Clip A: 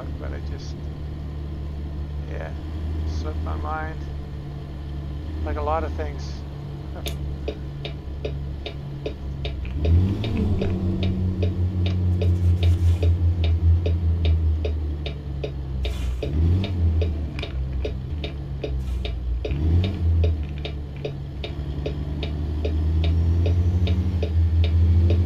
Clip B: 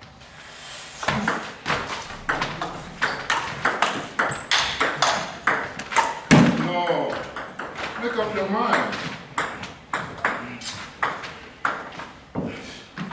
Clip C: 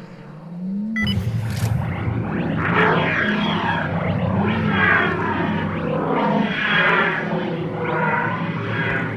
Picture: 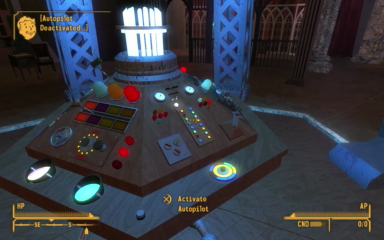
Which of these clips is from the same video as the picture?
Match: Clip C